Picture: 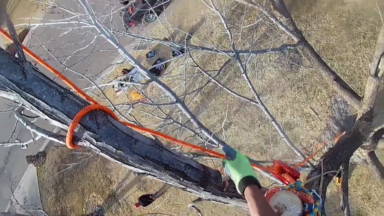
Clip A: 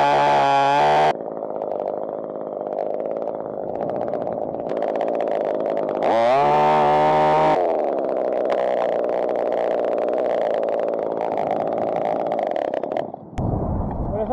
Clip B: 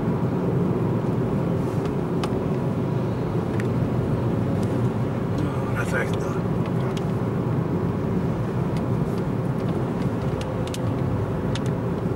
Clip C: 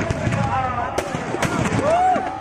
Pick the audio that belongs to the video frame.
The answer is A